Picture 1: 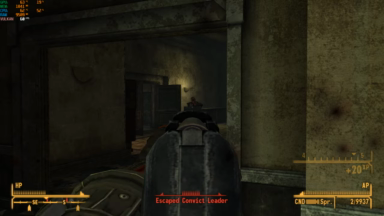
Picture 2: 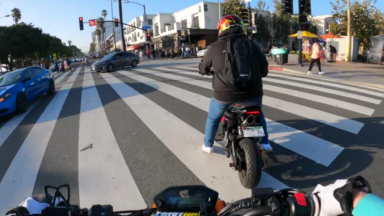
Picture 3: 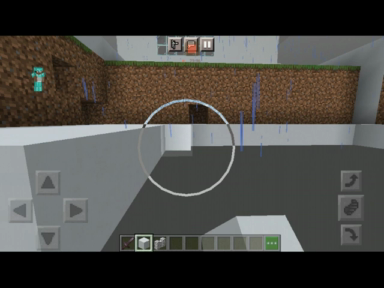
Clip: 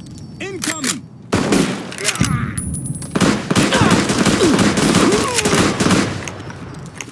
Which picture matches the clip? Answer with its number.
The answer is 1